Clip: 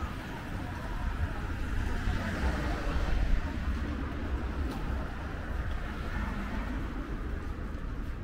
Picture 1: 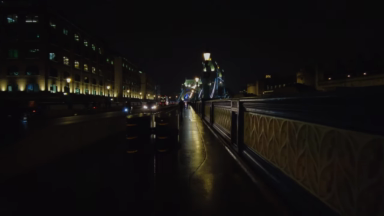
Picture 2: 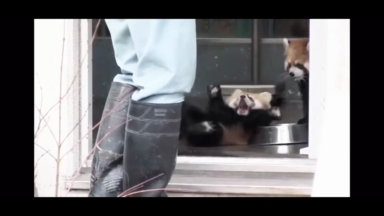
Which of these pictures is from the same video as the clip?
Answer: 1